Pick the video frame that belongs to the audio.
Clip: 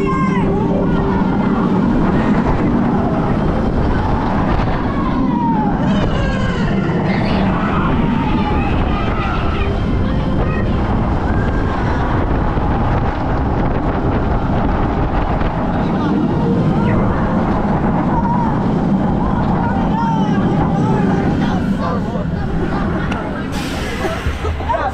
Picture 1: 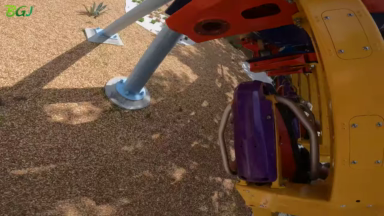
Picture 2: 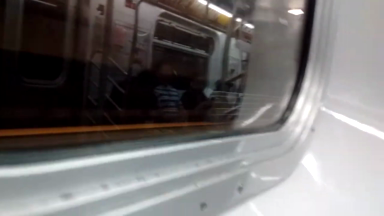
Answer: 1